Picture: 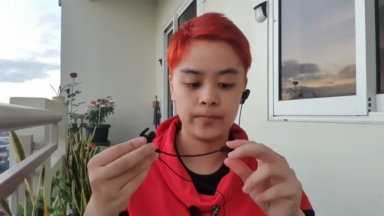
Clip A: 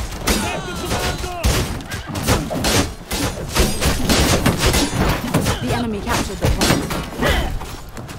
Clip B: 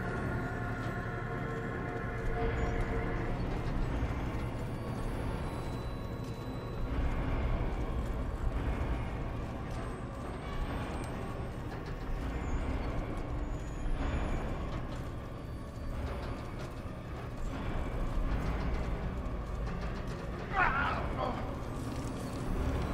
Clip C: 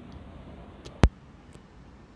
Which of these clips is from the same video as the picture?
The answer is C